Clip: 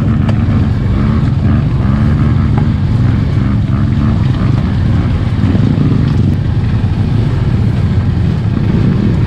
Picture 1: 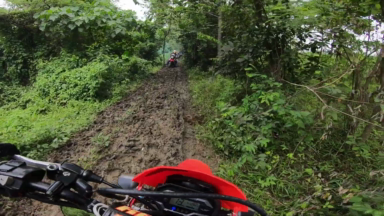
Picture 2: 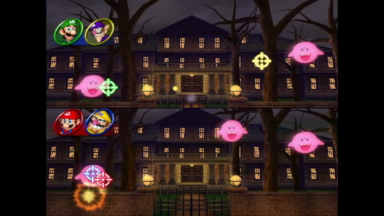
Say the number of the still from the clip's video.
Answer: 1